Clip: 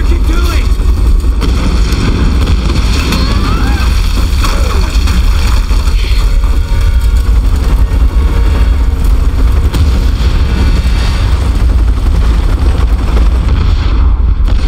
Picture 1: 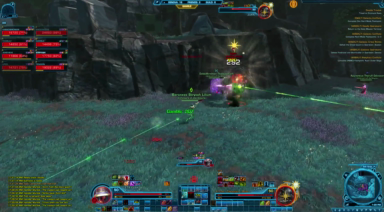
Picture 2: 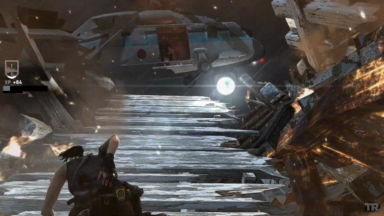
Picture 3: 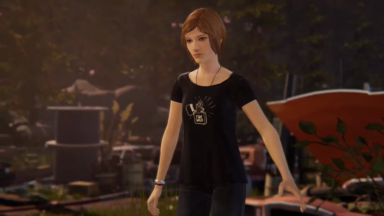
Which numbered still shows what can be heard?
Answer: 2